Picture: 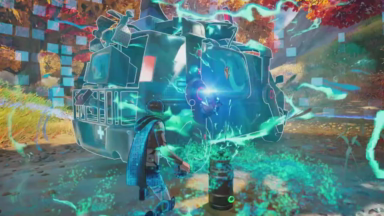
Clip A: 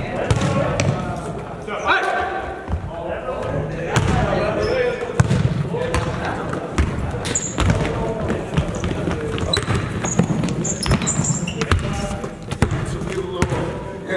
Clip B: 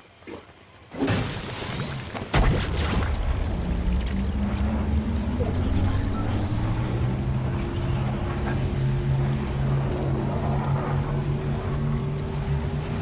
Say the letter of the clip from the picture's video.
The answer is B